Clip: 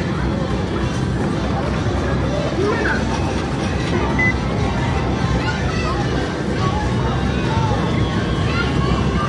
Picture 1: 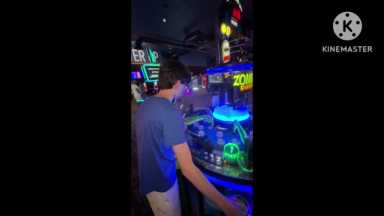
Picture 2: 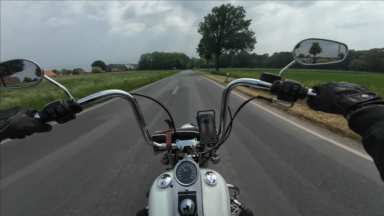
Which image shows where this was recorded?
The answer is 1